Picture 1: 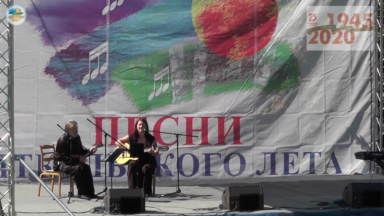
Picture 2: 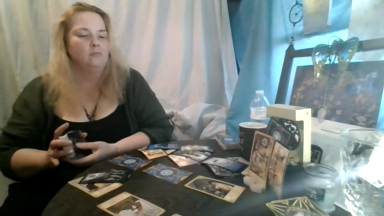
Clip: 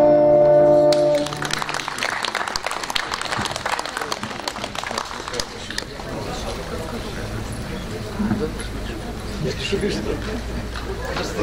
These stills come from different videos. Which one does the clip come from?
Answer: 1